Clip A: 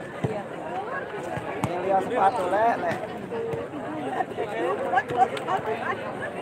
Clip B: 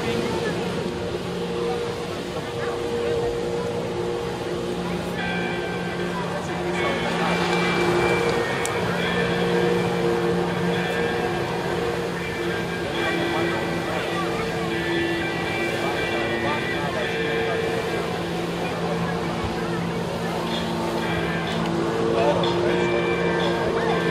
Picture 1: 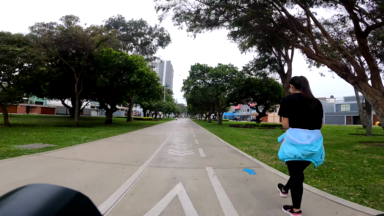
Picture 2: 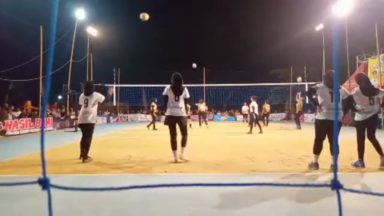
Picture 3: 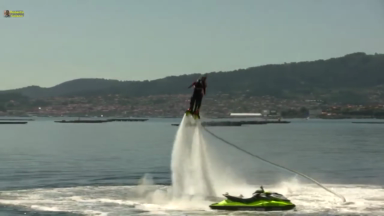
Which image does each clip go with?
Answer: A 2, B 3